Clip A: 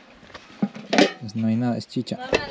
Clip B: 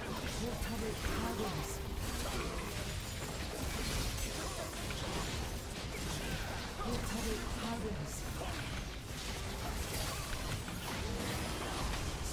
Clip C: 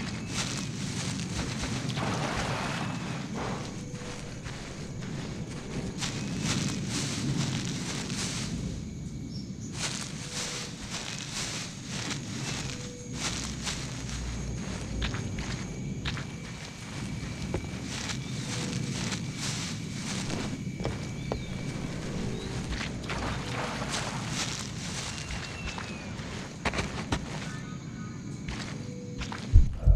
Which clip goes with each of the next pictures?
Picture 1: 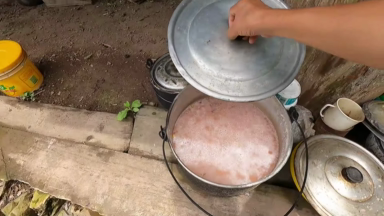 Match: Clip A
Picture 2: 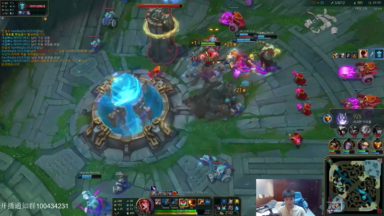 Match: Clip B